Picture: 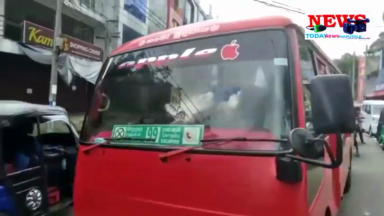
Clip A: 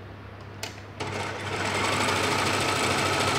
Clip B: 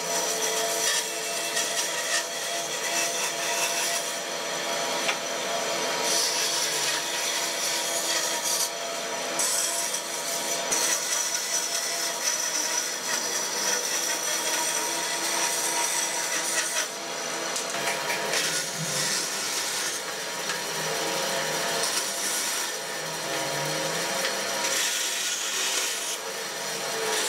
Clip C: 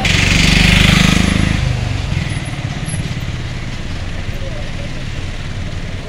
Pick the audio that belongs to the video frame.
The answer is C